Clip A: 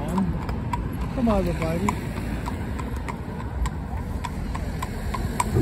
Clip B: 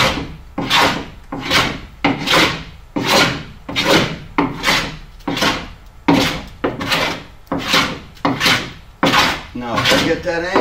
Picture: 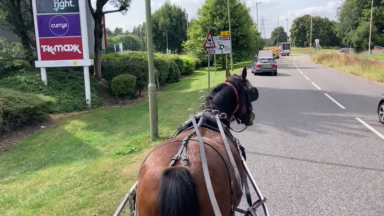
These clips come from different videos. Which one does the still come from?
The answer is A